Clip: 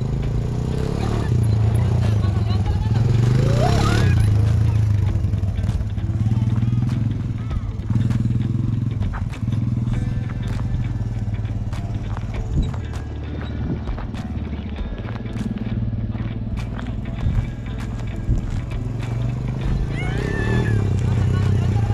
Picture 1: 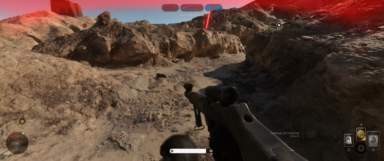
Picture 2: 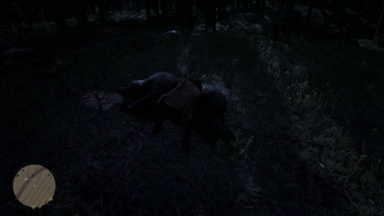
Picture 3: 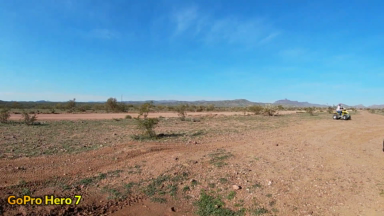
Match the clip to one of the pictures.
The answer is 3